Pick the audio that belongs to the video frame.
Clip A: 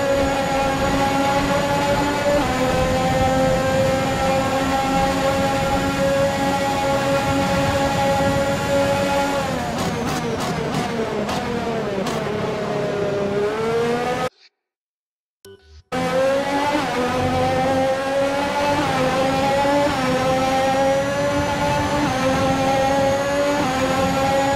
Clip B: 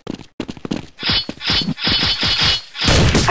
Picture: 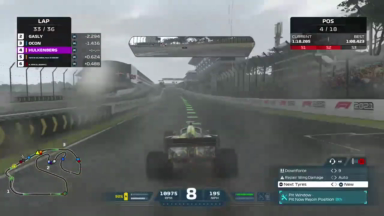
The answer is A